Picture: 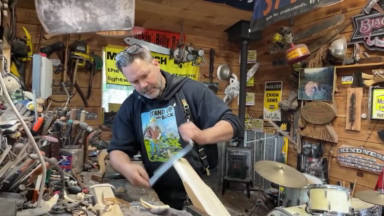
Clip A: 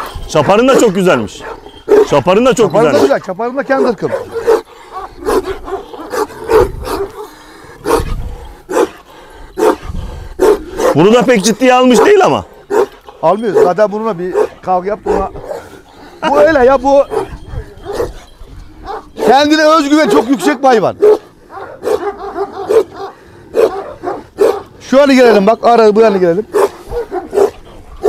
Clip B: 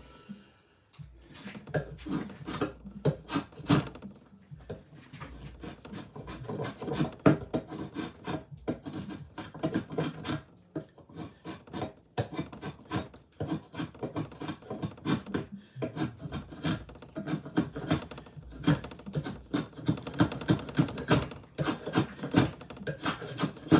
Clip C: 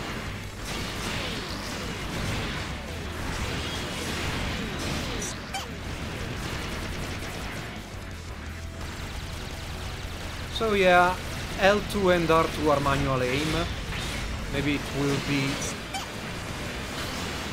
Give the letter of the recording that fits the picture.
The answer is B